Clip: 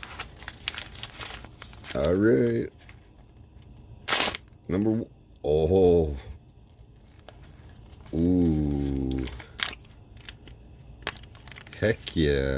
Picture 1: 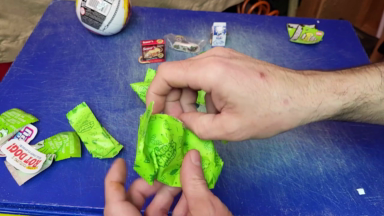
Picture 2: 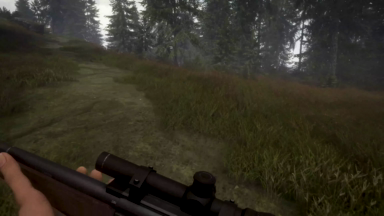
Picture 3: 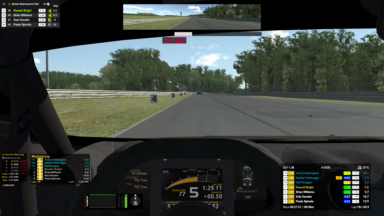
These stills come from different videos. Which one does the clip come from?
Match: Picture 1